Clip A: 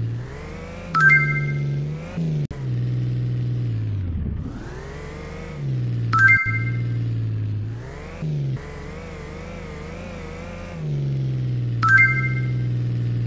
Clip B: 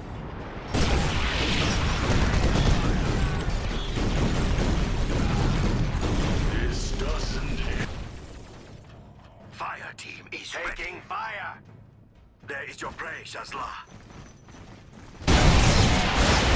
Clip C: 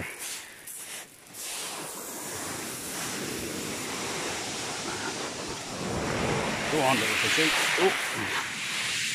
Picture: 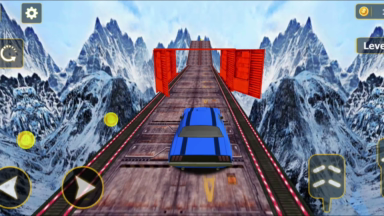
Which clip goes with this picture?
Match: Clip A